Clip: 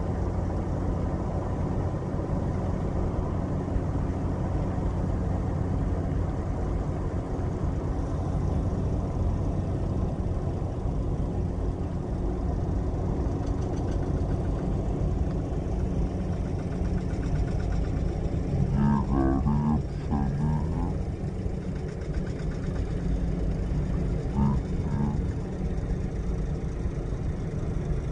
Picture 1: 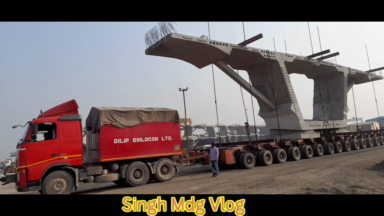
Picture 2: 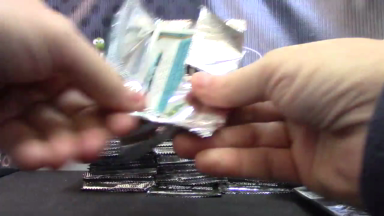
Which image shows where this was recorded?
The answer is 1